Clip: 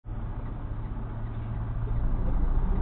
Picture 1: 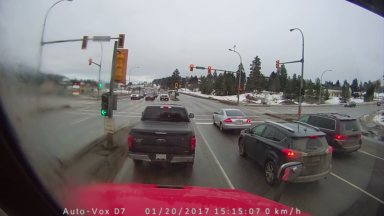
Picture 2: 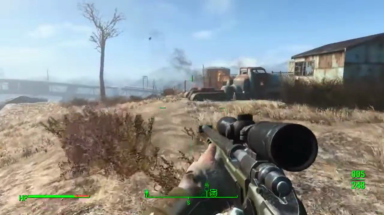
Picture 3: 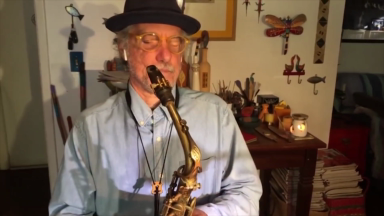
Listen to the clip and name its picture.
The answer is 1